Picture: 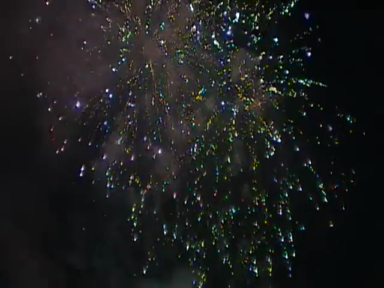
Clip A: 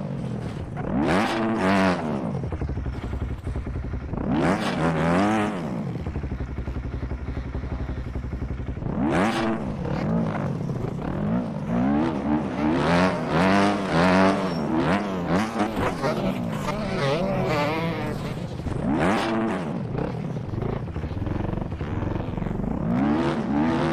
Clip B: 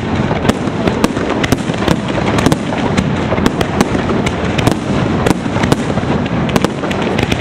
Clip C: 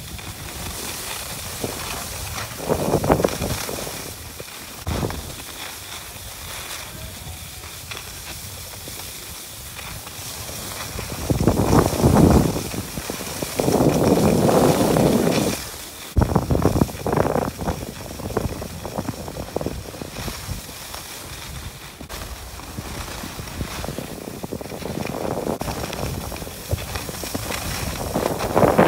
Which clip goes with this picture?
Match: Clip B